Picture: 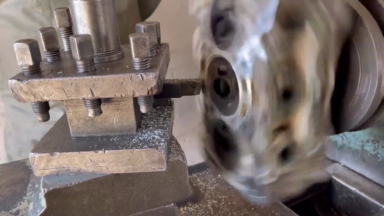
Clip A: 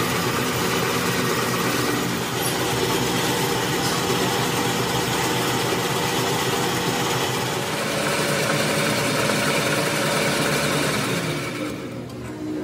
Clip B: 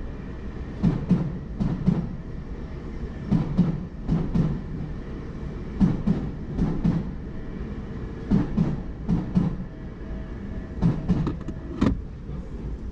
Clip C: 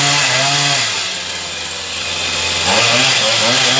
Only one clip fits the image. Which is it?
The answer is A